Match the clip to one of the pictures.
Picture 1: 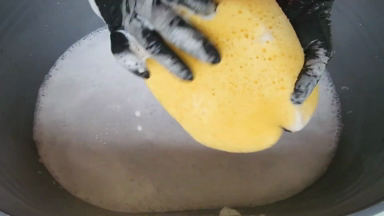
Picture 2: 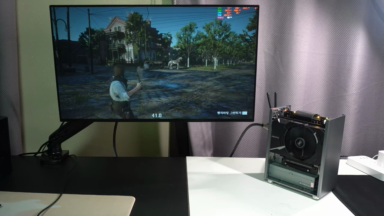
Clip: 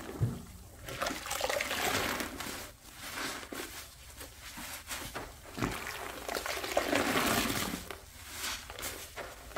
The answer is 1